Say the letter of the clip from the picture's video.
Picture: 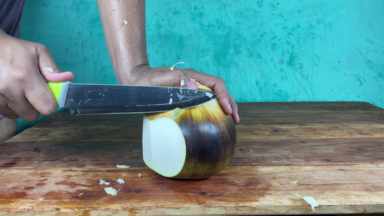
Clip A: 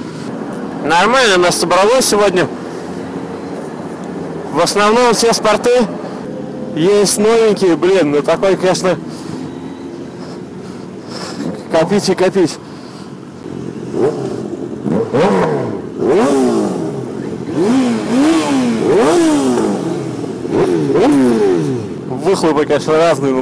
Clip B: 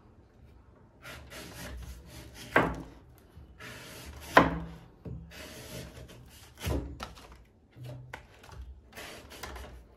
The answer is B